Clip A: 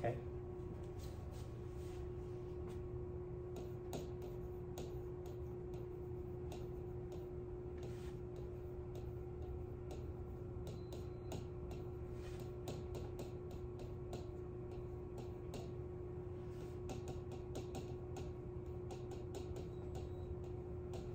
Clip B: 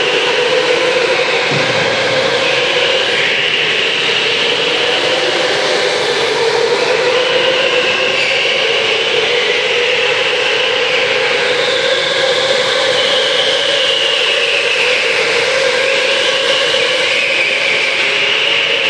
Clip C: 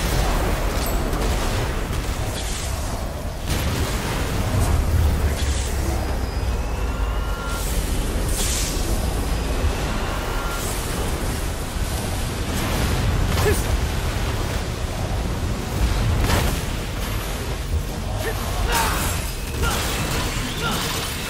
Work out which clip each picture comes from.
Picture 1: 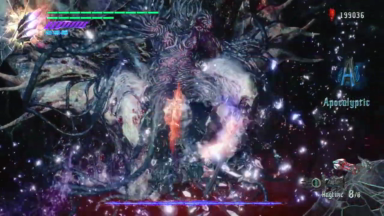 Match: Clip C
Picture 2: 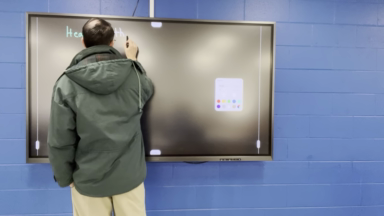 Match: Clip A